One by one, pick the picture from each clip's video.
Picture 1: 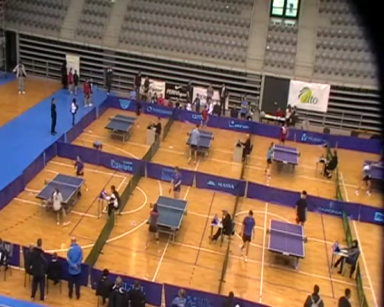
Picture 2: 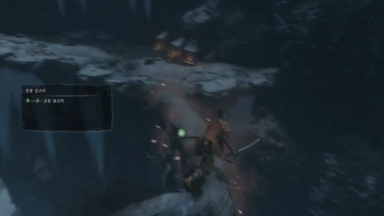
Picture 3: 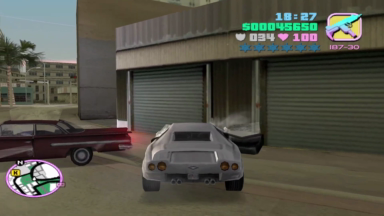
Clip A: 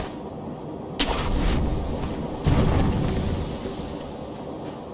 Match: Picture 2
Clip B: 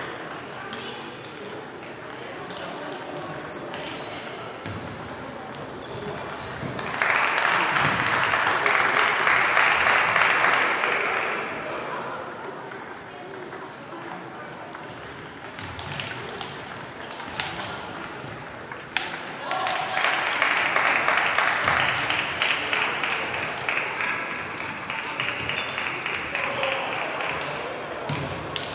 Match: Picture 1